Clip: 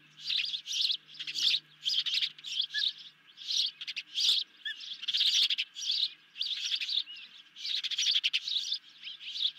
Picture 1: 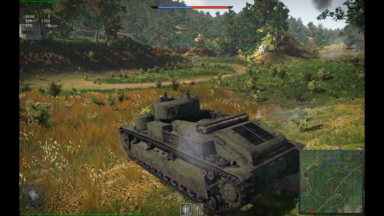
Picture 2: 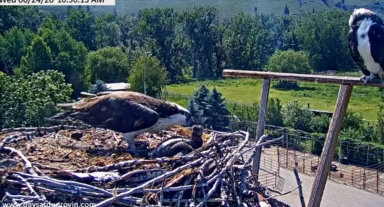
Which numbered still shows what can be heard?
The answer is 2